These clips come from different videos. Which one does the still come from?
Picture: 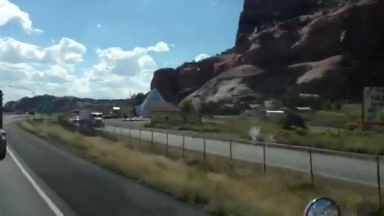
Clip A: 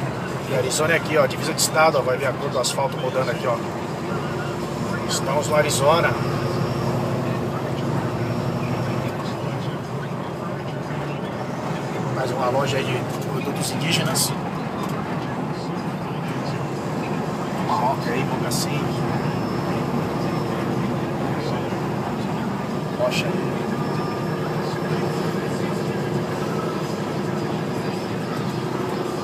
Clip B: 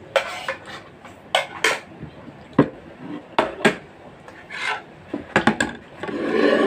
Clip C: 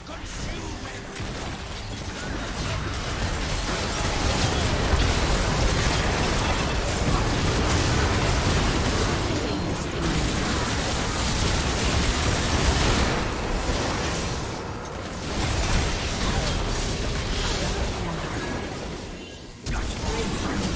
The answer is A